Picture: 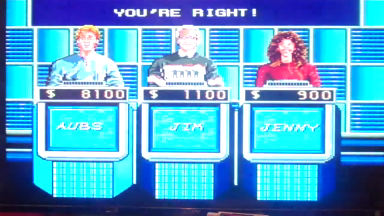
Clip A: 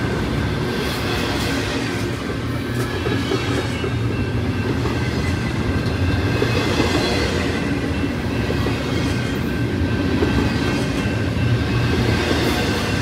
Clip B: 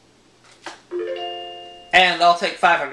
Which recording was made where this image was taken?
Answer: B